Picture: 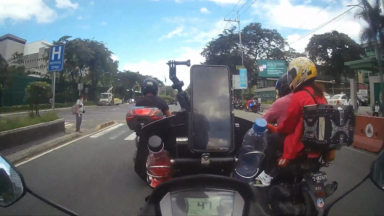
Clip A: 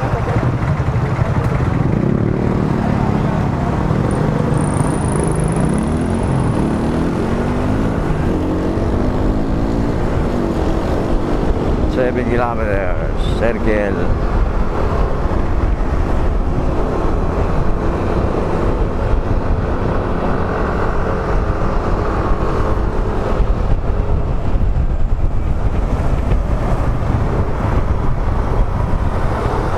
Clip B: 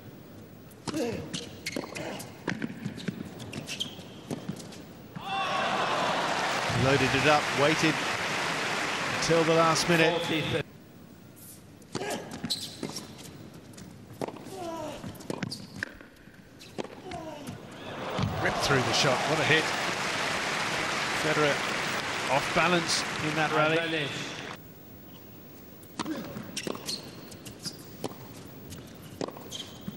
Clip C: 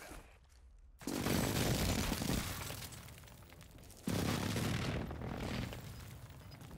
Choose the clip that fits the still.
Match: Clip A